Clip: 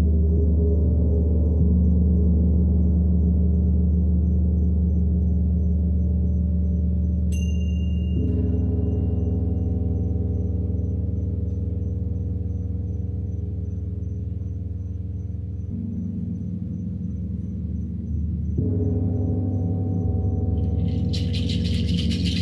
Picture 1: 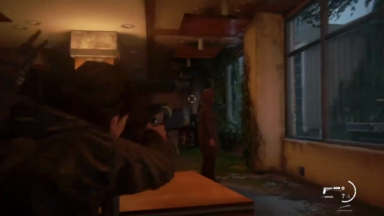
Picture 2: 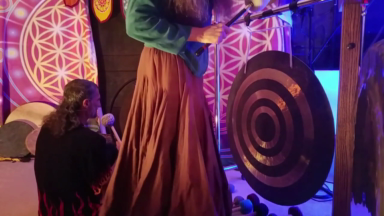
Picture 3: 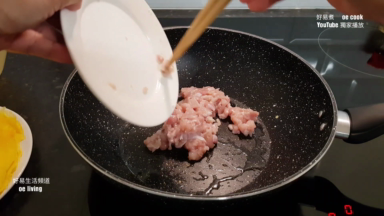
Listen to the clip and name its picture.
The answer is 2